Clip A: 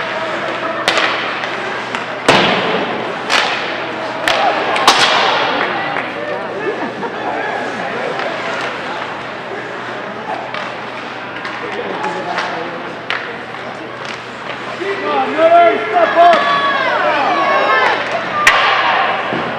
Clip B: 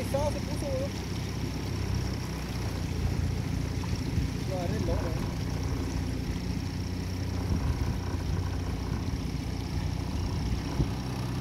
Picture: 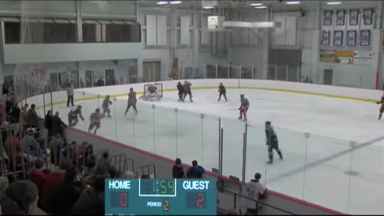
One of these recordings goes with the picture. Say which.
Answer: A